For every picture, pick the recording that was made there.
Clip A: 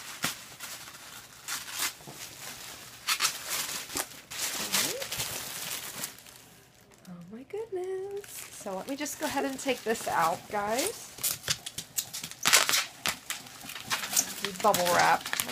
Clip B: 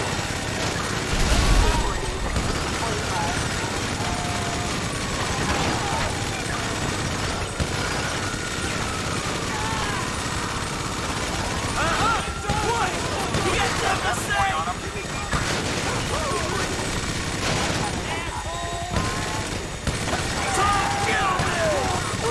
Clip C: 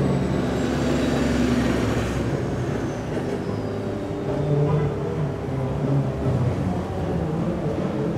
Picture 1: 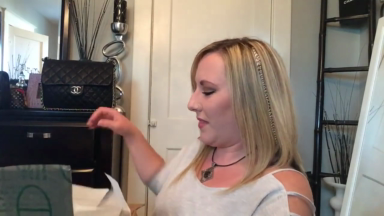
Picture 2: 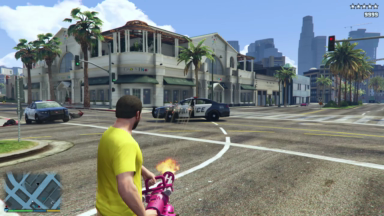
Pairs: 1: A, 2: B